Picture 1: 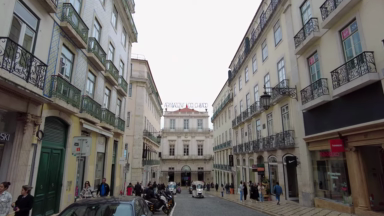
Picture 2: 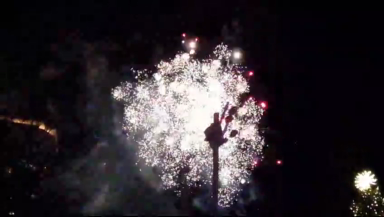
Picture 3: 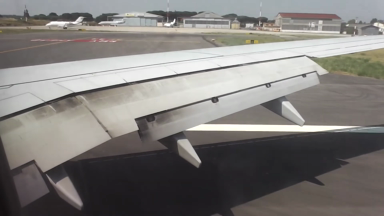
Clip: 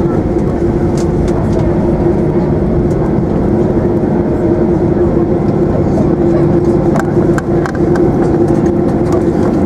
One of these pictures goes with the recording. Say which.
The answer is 3